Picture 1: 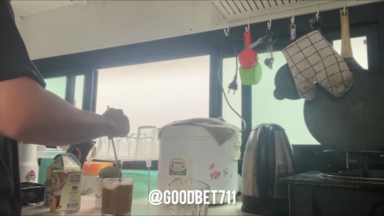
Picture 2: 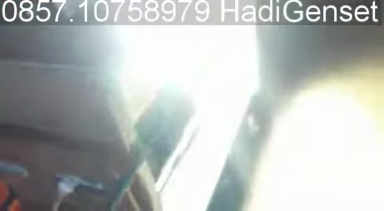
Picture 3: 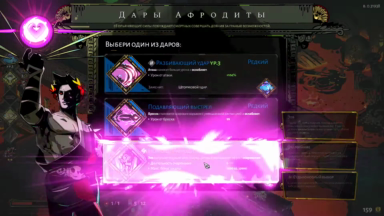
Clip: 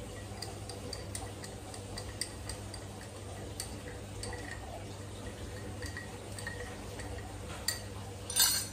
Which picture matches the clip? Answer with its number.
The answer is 1